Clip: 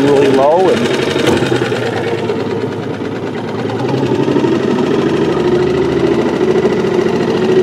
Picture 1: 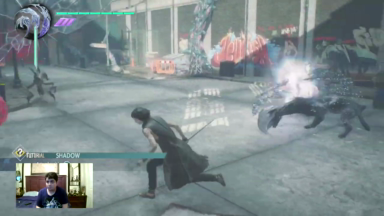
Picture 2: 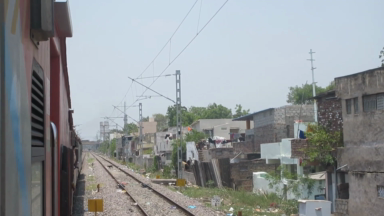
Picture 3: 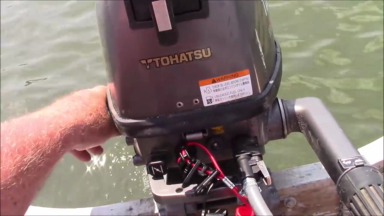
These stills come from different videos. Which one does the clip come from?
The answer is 3